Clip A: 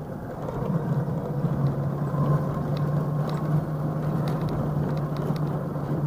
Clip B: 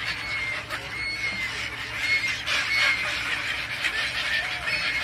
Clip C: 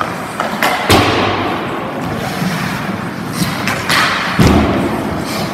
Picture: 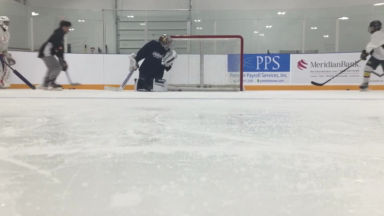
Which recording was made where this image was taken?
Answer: C